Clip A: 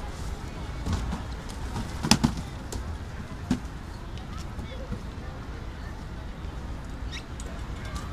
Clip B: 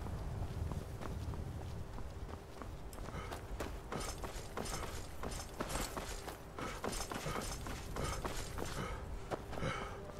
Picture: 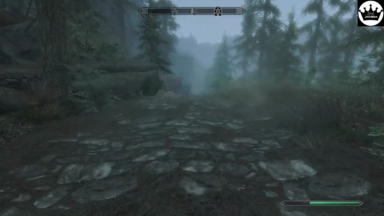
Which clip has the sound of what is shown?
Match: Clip B